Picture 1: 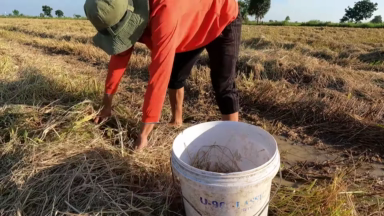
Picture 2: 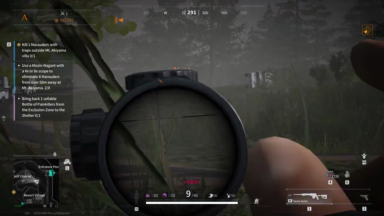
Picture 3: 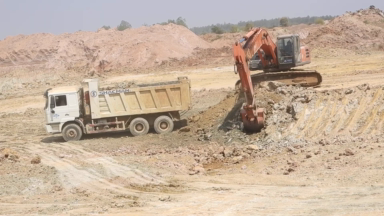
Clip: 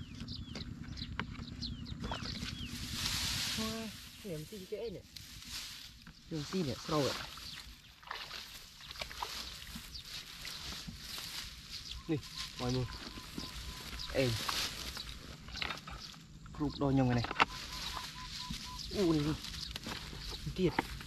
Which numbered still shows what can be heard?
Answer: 1